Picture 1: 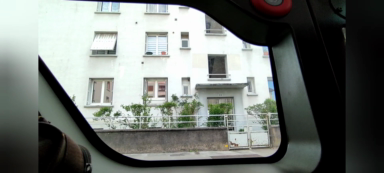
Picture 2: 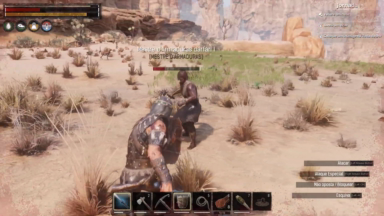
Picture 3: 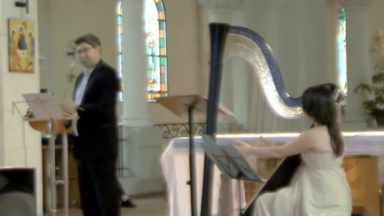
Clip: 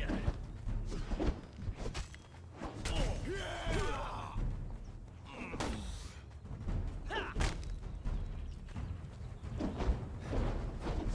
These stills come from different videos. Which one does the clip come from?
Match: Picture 2